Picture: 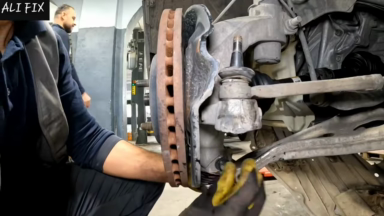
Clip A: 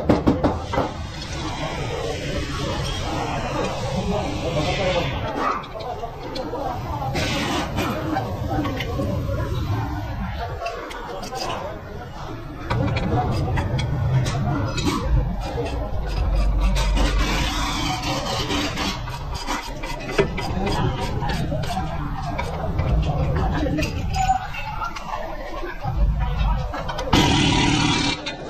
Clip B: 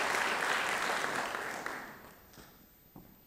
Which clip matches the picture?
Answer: A